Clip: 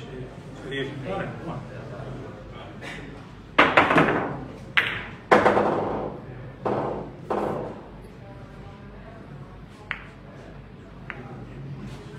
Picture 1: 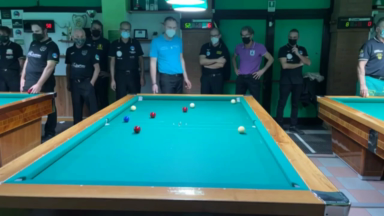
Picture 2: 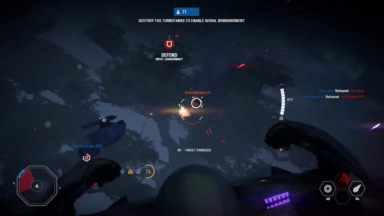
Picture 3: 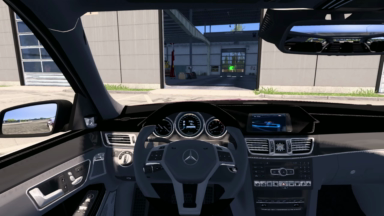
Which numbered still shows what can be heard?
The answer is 1